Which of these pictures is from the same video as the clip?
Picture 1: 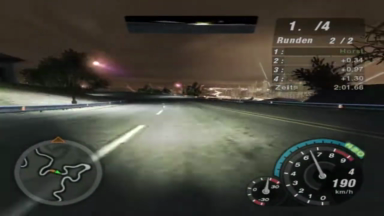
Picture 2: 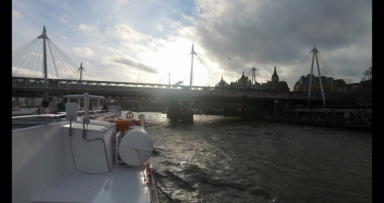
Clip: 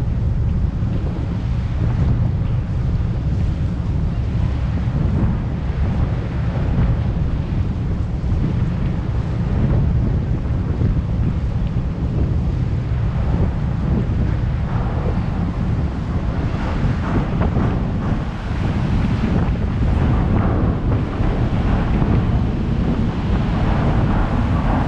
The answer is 2